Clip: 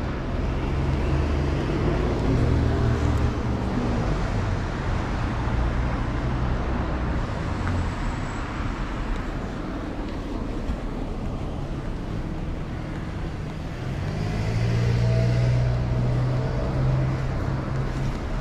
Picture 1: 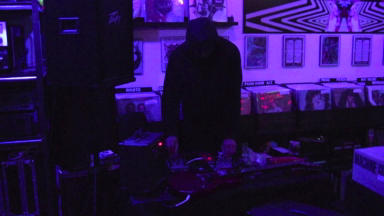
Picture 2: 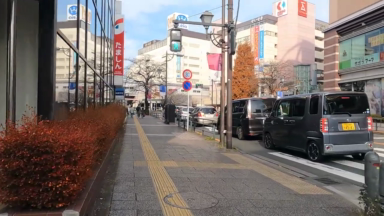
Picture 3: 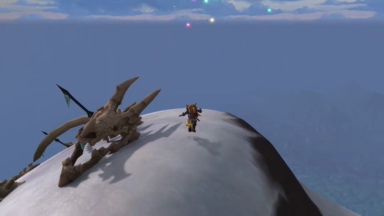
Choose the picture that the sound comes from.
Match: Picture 2